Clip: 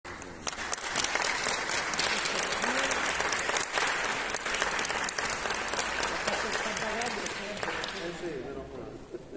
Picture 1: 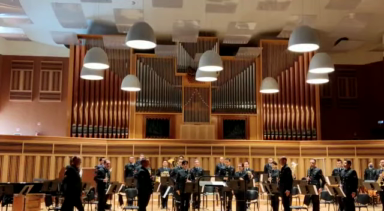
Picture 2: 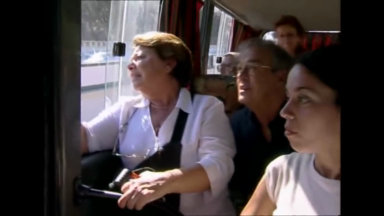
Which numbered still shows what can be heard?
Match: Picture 1